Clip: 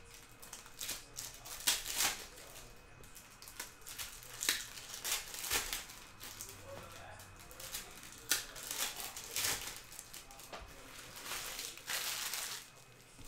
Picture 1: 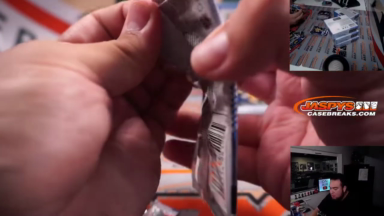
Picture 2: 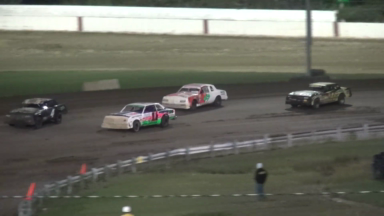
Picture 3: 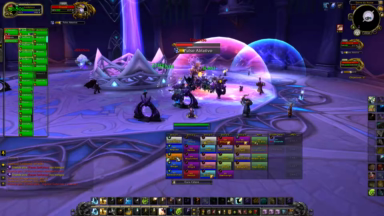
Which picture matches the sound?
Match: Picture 1